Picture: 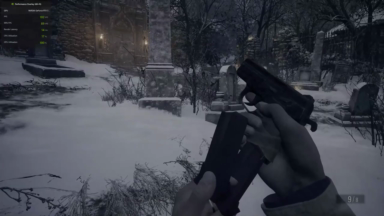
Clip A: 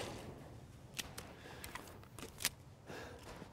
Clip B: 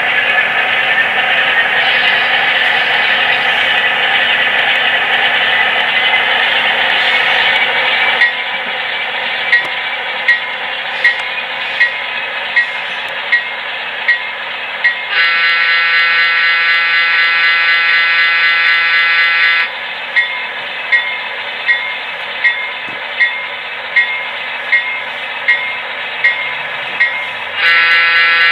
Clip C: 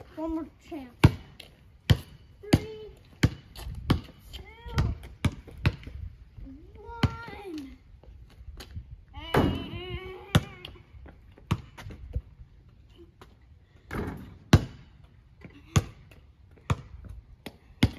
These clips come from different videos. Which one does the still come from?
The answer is A